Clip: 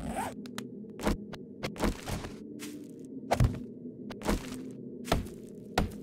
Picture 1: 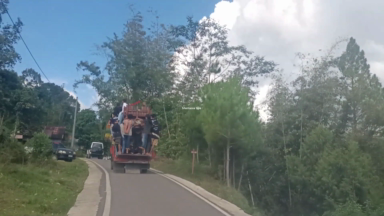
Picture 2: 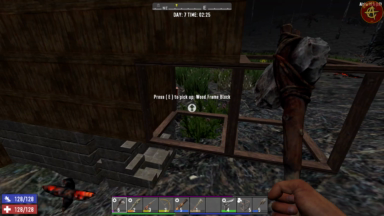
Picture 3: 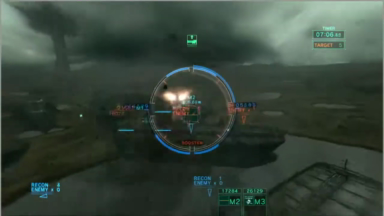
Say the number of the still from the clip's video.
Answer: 2